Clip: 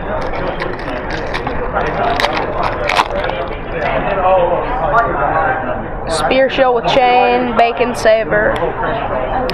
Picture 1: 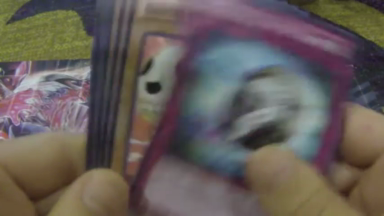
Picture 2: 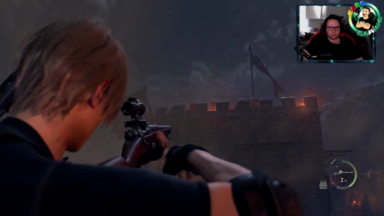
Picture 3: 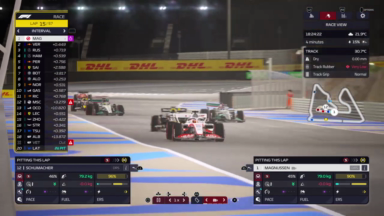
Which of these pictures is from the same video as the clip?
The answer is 1